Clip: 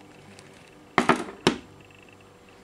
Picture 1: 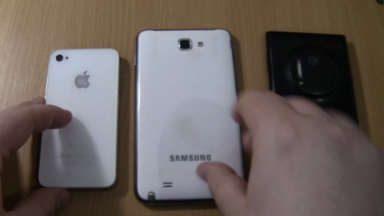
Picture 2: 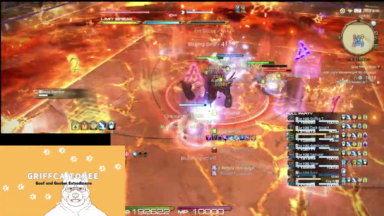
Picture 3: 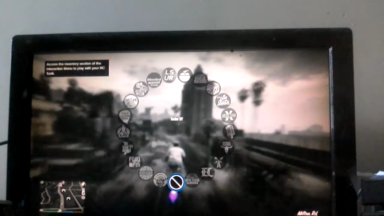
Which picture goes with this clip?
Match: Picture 1